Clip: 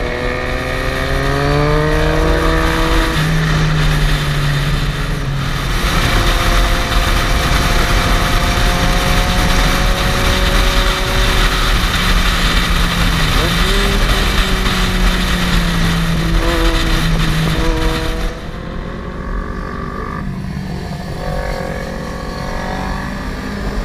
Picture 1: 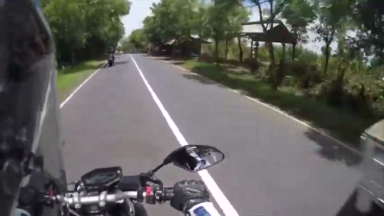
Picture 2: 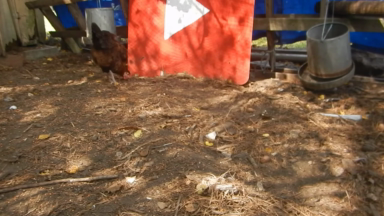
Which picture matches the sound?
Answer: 1